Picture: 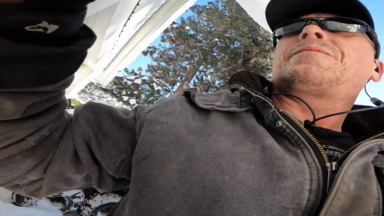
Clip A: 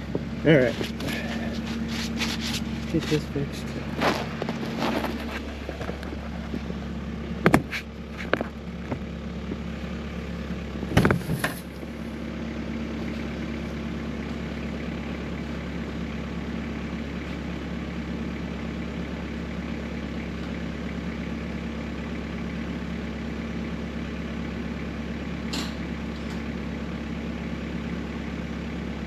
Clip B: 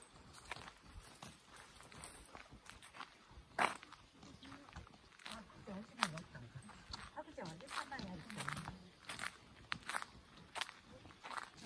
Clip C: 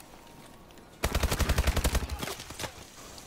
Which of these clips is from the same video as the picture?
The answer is A